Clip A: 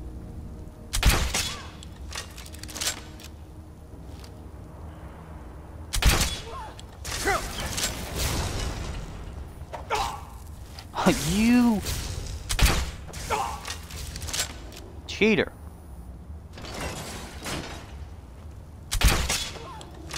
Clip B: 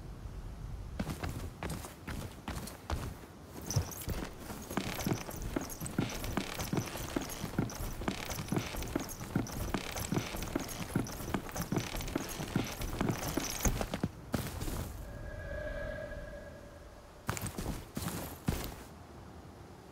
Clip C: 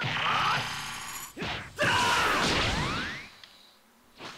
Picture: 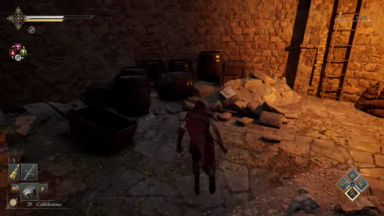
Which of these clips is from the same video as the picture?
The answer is B